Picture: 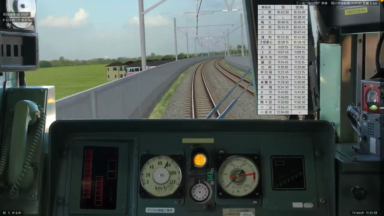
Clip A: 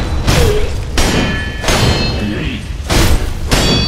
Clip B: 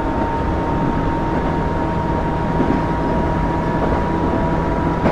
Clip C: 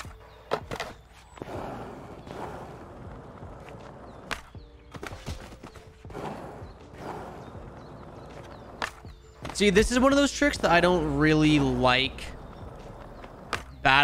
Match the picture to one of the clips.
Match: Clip B